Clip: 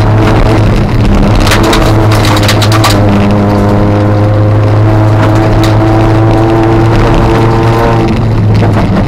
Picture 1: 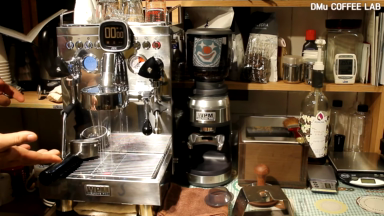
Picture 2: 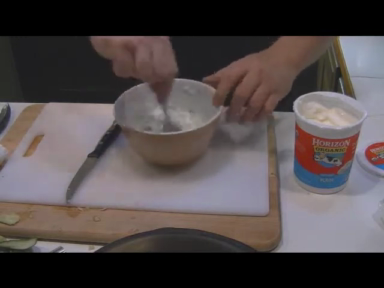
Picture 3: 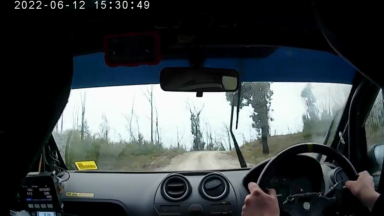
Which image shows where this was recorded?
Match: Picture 3